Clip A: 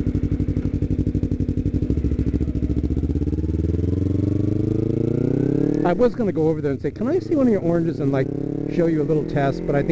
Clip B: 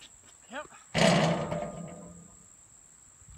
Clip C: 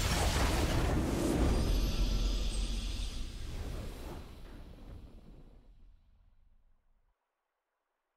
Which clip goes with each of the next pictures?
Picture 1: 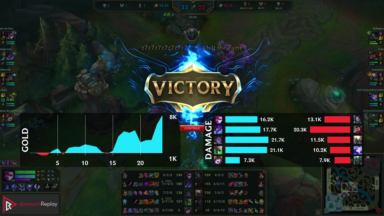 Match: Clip C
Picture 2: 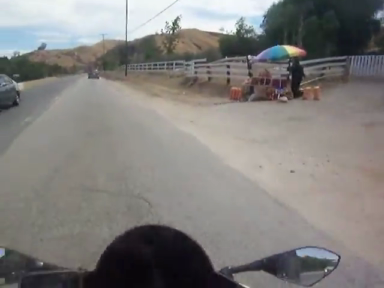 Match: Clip A